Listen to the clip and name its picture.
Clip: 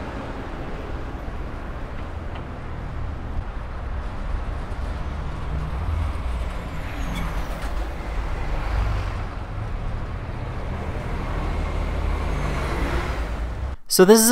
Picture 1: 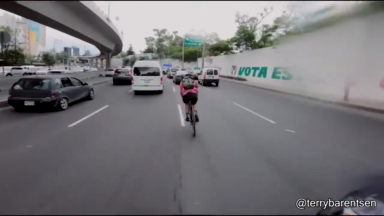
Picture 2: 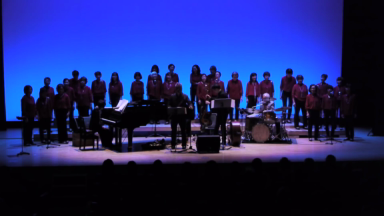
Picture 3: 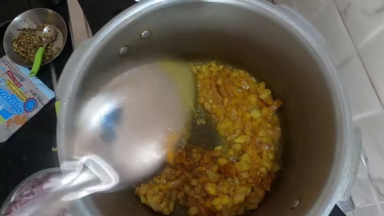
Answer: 1